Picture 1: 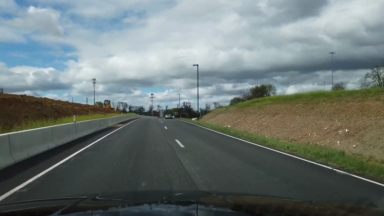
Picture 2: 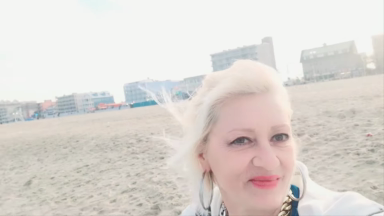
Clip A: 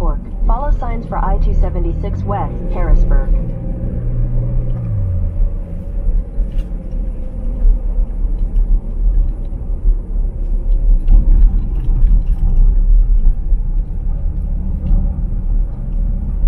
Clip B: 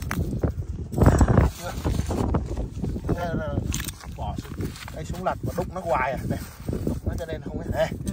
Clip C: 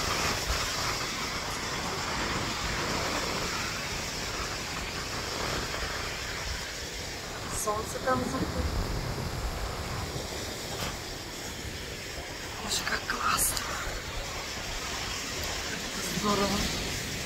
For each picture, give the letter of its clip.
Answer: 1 A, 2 C